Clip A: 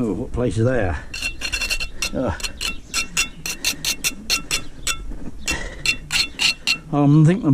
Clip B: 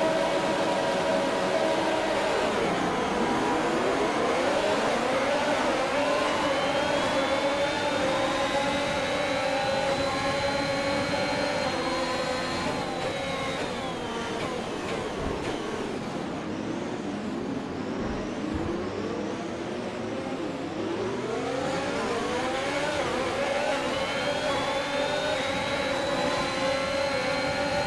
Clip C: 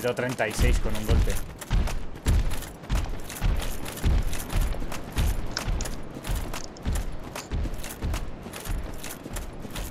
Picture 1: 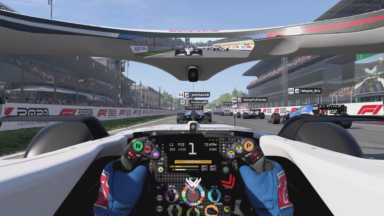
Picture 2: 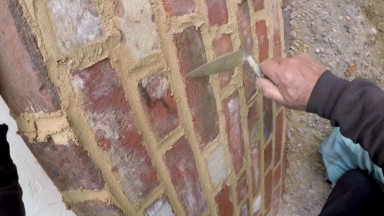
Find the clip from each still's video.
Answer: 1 B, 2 A